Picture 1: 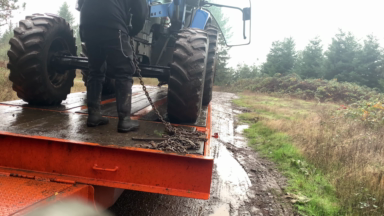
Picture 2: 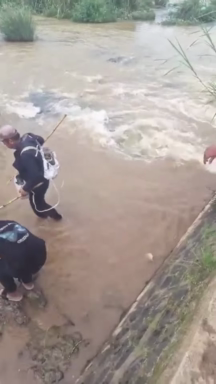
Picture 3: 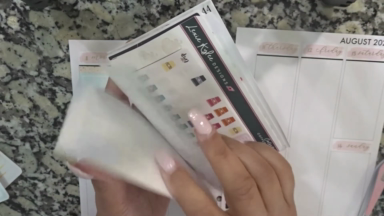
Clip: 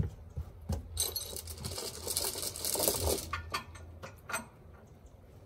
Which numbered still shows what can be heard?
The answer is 1